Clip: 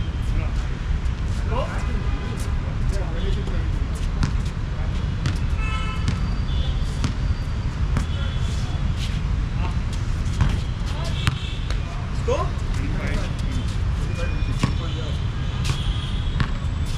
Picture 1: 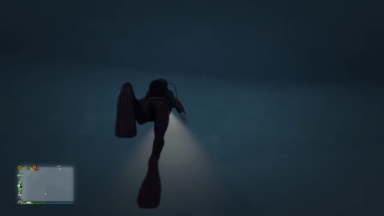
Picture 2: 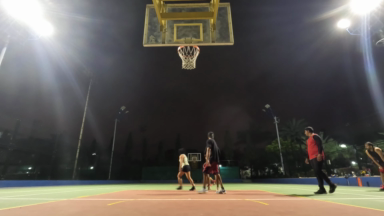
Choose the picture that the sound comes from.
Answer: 2